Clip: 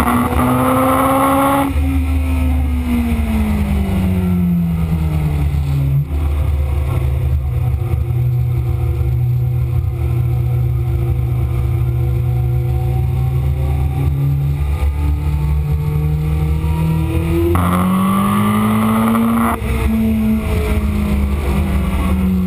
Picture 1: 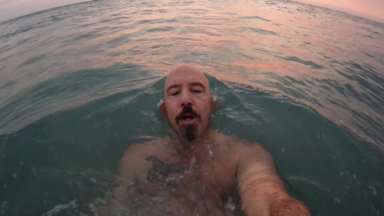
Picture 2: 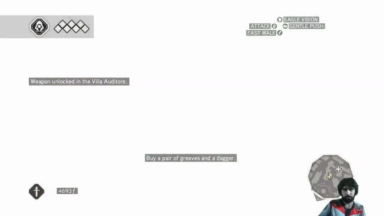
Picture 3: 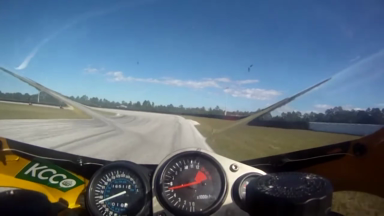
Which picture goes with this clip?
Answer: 3